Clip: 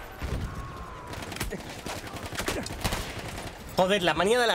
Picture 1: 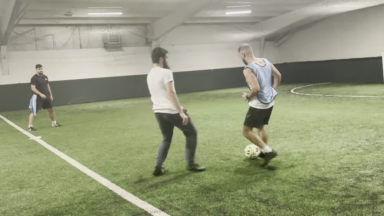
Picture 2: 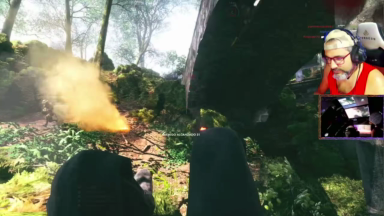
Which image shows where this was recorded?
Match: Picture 2